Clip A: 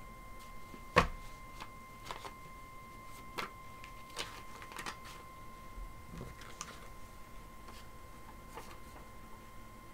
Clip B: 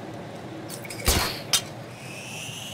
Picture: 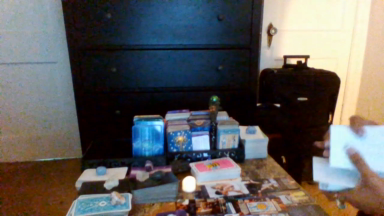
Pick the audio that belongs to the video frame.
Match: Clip A